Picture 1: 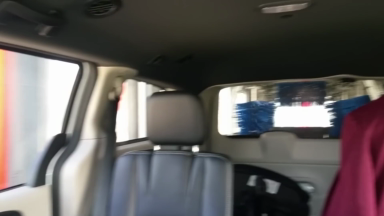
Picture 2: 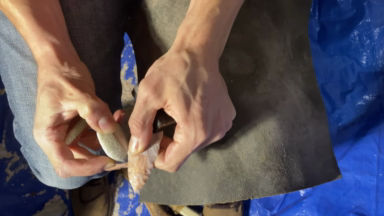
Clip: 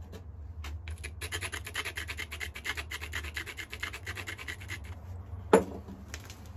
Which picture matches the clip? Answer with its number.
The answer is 2